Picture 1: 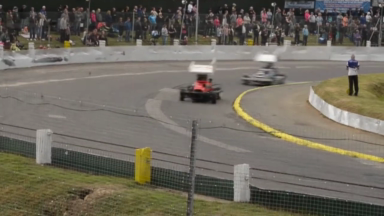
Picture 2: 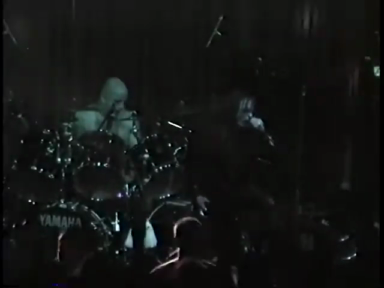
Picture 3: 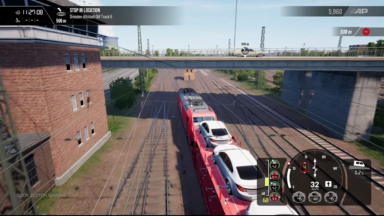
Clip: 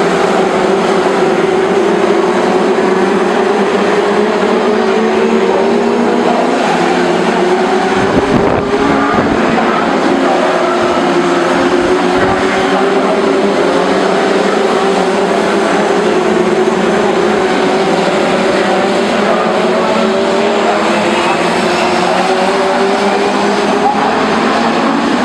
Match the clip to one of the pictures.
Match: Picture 1